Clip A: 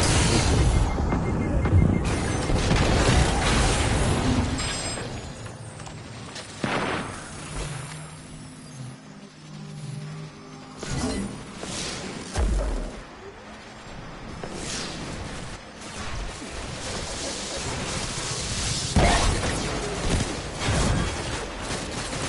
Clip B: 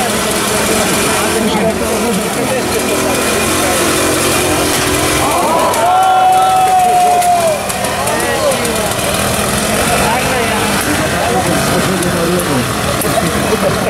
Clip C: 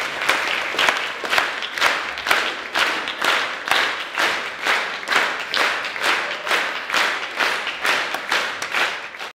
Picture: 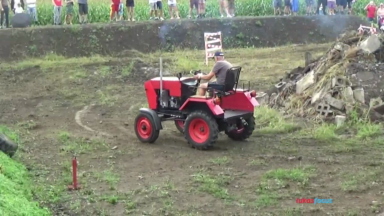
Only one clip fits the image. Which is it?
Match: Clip B